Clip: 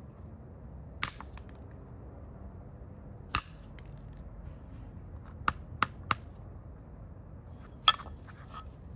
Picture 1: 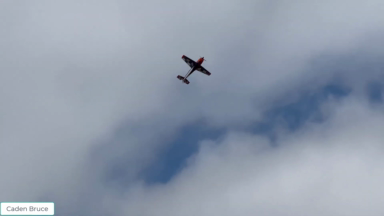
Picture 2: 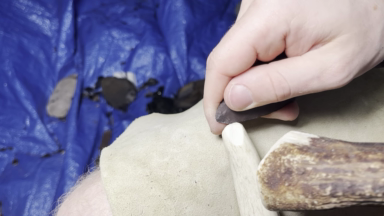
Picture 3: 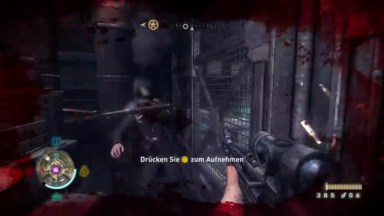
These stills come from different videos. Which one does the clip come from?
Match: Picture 2